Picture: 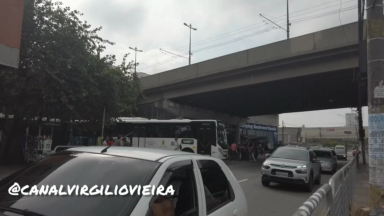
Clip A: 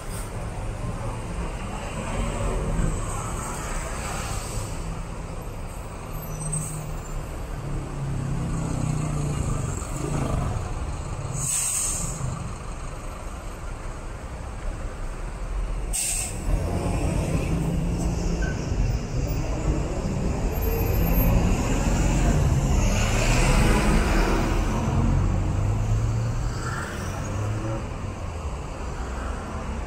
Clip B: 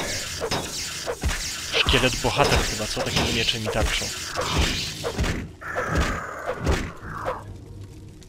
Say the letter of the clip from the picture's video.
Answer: A